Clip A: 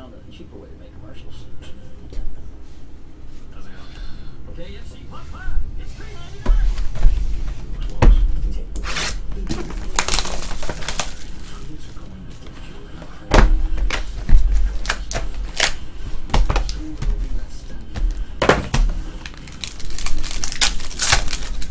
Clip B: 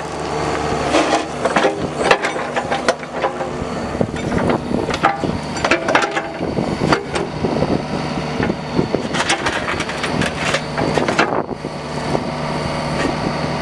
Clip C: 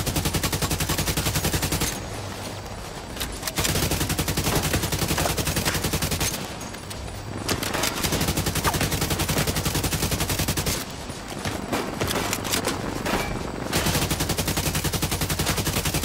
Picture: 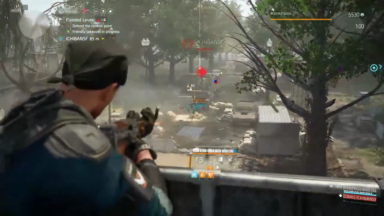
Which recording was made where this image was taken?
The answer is C